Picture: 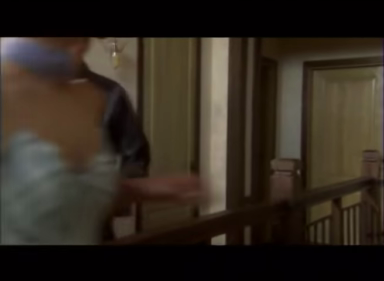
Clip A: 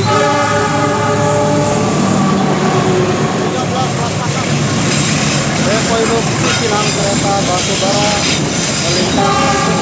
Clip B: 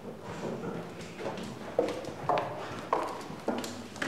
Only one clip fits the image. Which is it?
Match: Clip B